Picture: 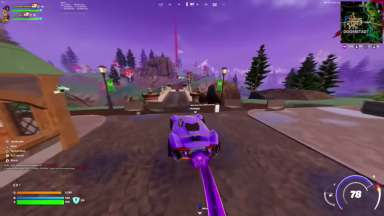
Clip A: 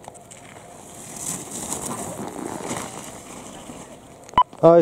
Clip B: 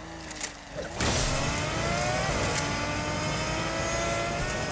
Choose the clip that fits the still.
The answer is B